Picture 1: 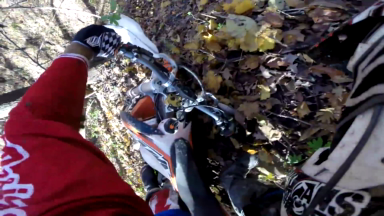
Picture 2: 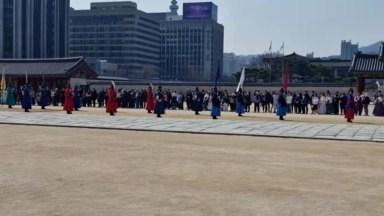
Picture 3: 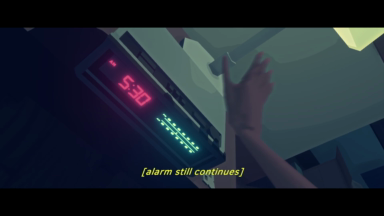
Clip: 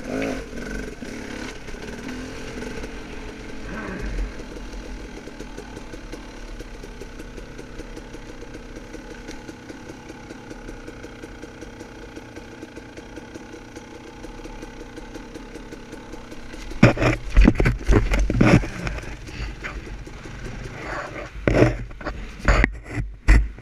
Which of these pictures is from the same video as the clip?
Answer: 1